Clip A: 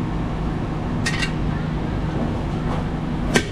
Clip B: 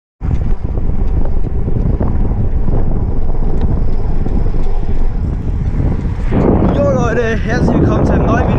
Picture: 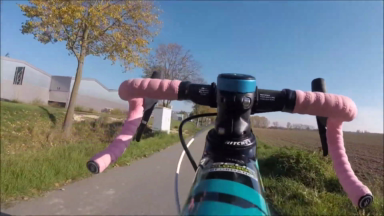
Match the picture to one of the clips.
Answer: B